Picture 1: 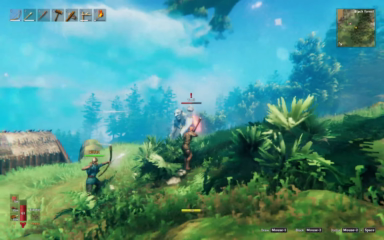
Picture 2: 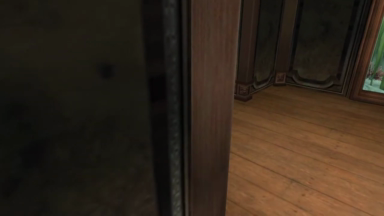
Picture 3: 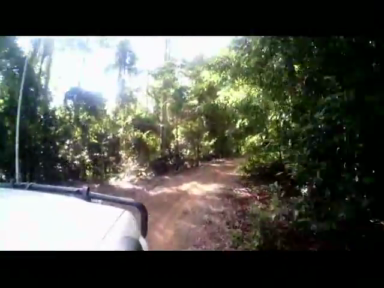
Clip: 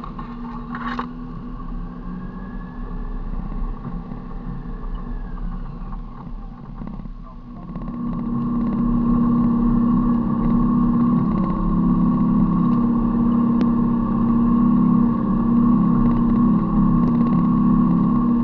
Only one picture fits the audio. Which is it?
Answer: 3